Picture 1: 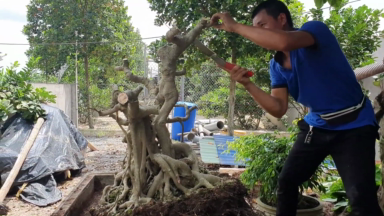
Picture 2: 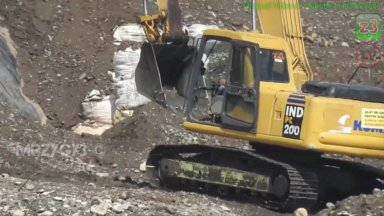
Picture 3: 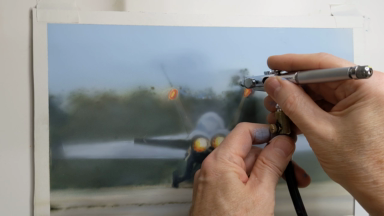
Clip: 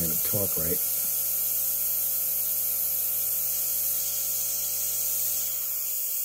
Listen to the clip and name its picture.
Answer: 3